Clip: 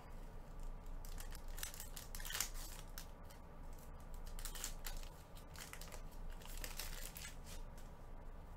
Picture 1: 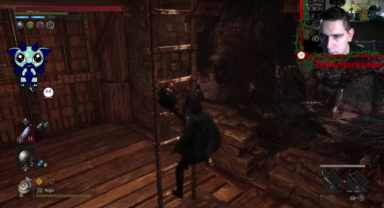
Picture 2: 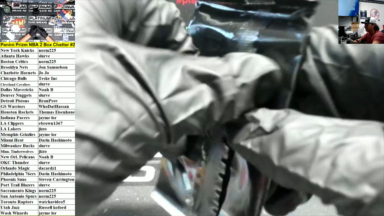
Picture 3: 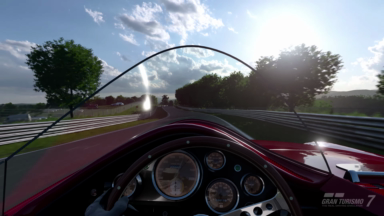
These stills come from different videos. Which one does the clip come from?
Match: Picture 2